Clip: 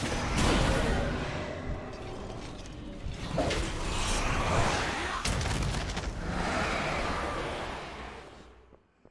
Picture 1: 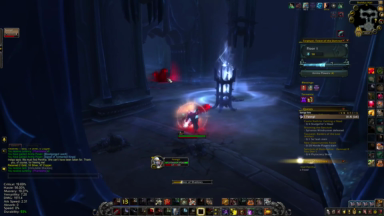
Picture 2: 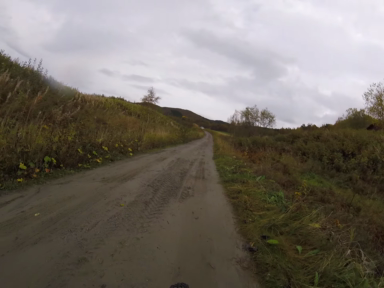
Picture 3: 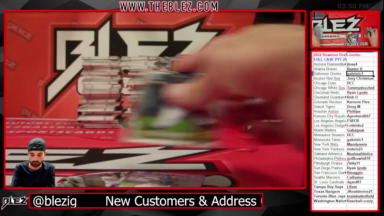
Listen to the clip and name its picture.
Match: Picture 1